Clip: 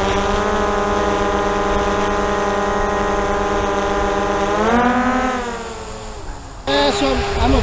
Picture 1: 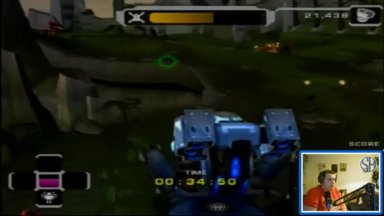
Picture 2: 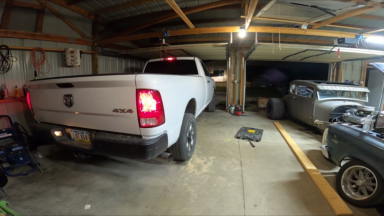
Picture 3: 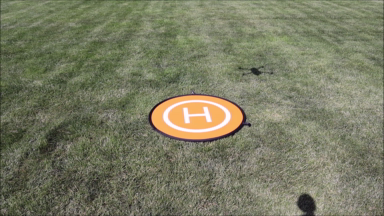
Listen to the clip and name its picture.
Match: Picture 3